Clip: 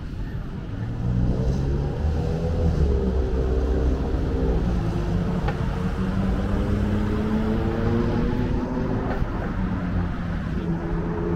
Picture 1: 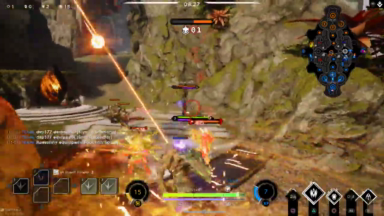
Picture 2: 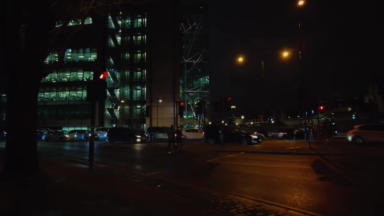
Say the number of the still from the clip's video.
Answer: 2